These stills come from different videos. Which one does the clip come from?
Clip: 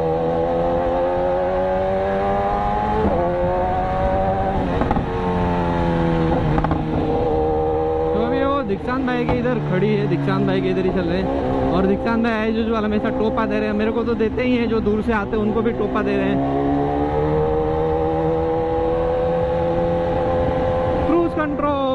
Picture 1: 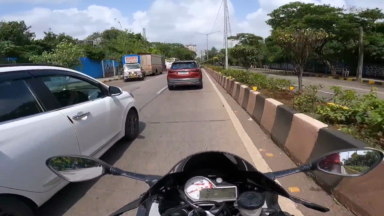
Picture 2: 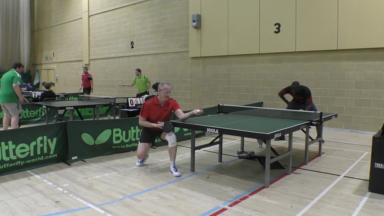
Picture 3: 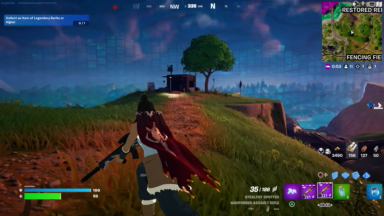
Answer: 1